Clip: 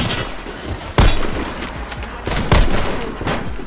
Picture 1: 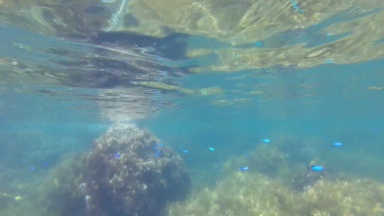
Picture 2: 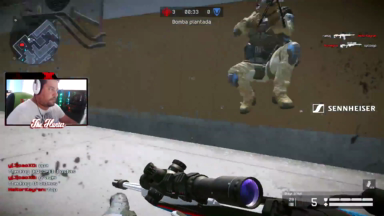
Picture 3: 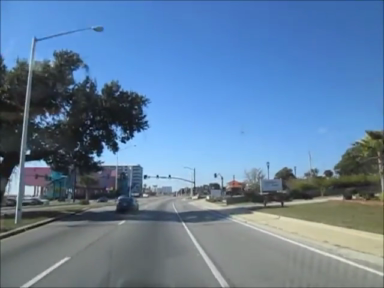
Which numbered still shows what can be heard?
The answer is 2